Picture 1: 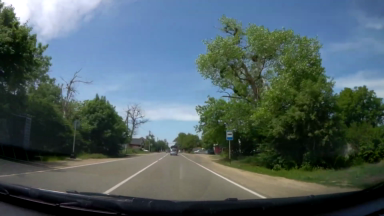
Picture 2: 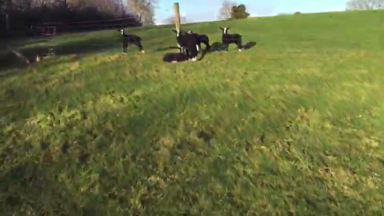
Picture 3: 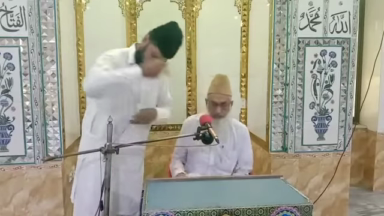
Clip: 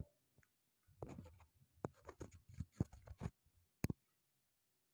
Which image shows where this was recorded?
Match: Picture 3